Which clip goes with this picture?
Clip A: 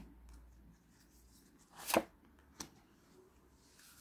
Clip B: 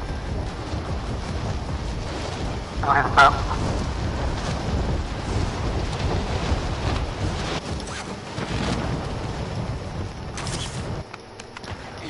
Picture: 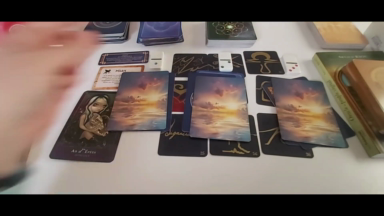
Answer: A